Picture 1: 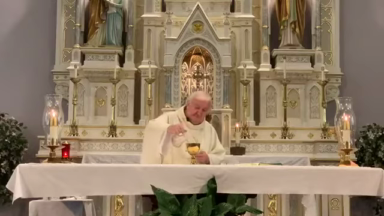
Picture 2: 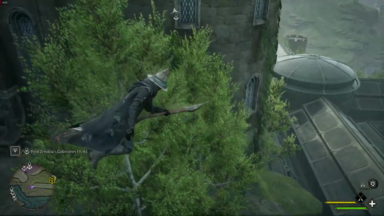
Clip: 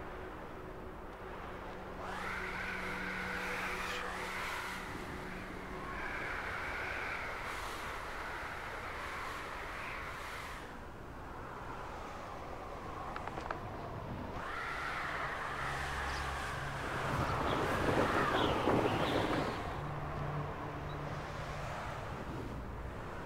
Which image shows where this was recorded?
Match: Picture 2